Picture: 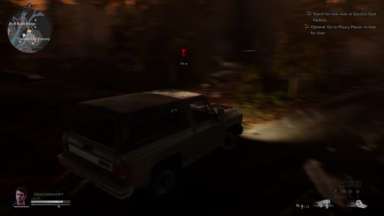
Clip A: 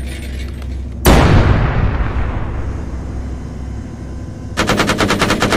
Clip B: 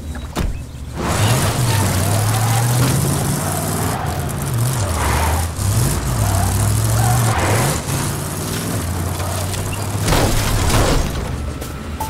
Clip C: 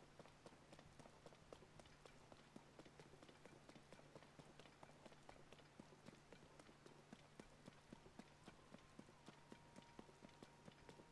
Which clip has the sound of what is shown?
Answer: B